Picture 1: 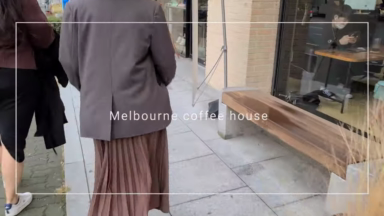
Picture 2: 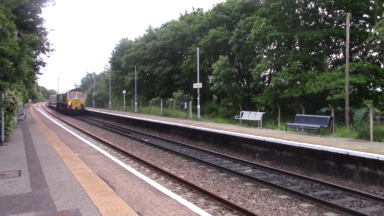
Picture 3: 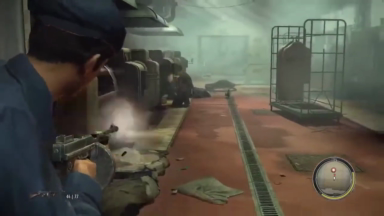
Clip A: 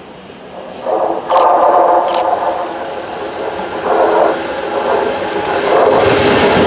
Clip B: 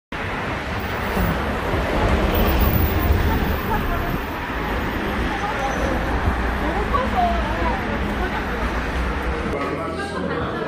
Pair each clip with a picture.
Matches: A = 2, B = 1